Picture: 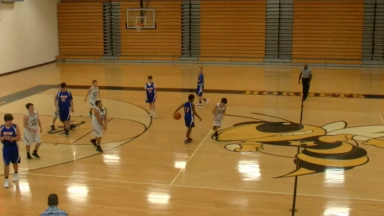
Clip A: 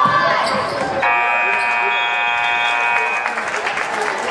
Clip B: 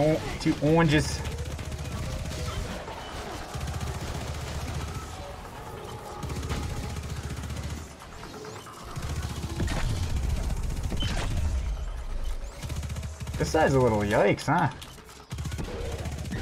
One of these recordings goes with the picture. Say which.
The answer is A